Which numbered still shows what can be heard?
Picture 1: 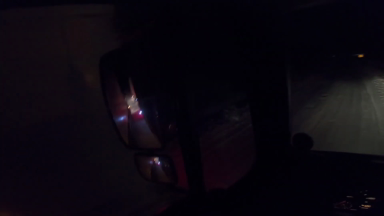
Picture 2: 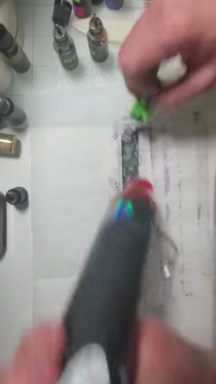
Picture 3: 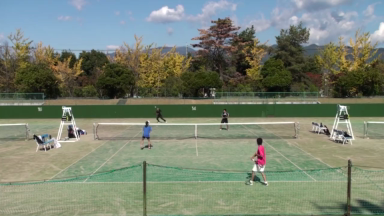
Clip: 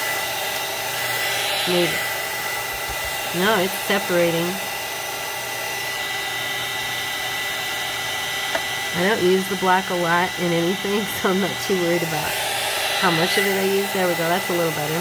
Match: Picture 2